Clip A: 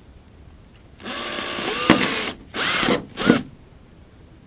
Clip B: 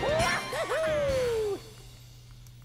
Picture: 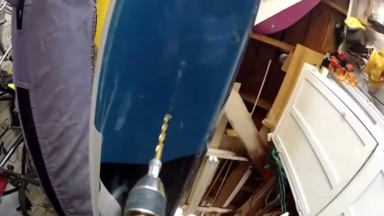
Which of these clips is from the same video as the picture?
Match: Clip A